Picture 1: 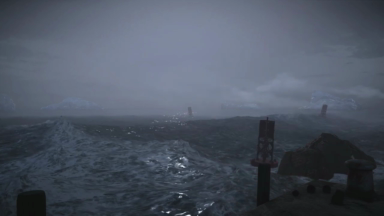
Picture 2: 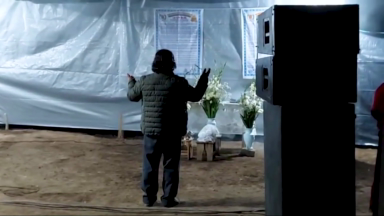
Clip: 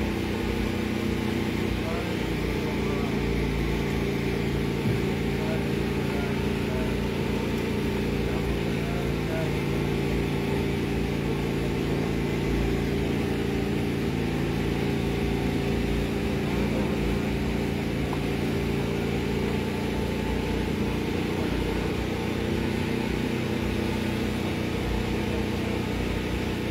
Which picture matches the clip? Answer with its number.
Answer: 2